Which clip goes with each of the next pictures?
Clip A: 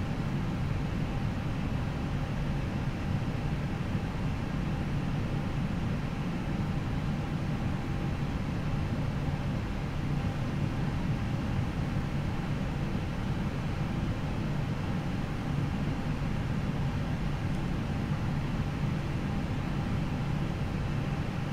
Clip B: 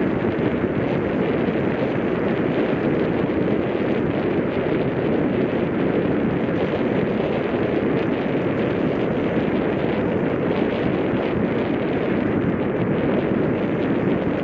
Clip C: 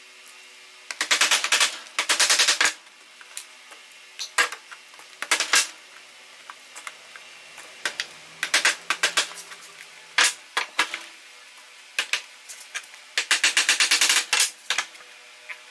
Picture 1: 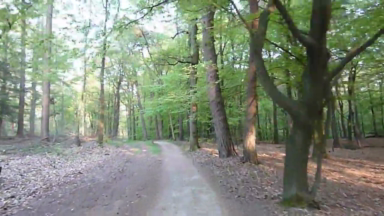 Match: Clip B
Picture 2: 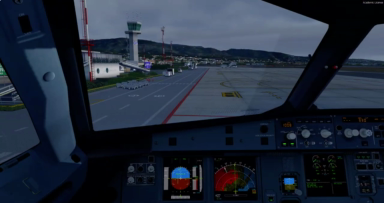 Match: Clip A